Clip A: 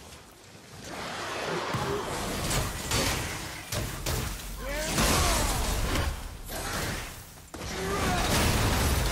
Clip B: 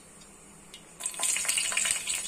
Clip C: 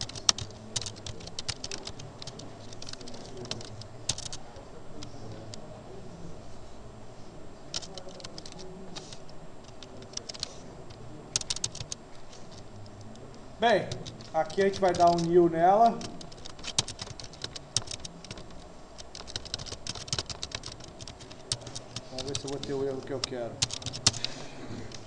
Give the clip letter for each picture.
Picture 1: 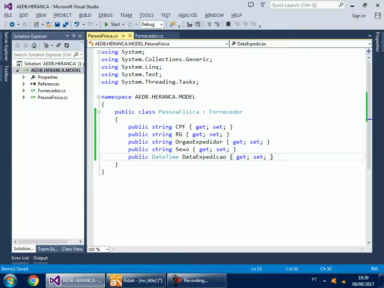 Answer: C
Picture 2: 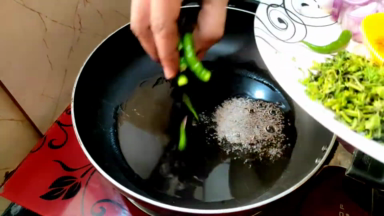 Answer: B